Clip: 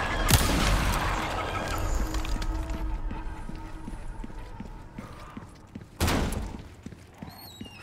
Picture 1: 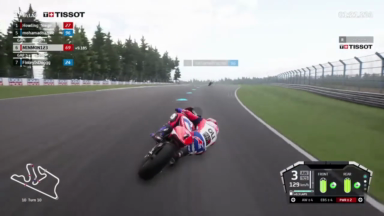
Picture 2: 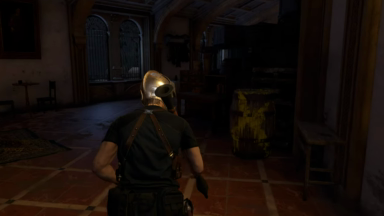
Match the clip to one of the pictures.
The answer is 2